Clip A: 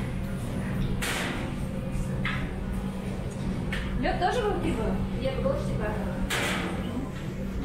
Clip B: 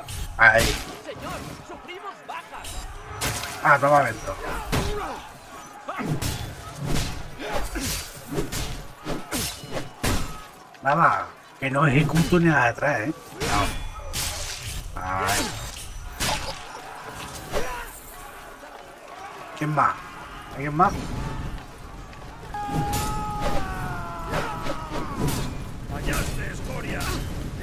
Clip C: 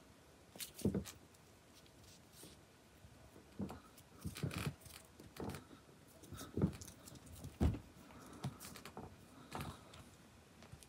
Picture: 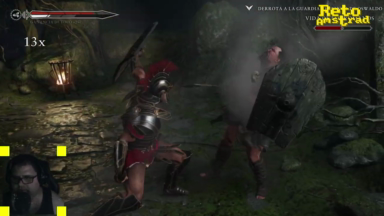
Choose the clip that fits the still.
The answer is B